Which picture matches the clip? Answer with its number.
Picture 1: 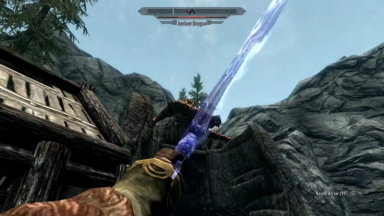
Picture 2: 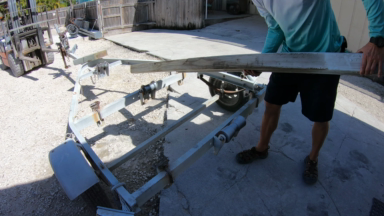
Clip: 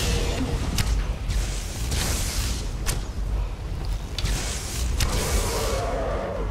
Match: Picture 1